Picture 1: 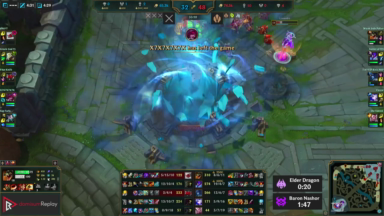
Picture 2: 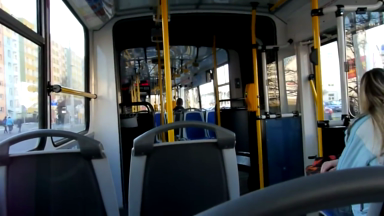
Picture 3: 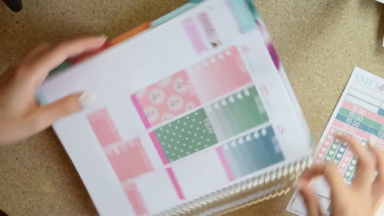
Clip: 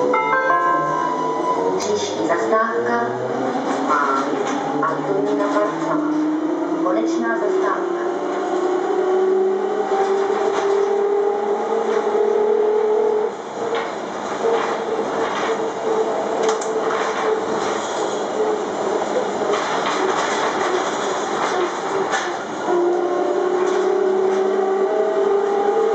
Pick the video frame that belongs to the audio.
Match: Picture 2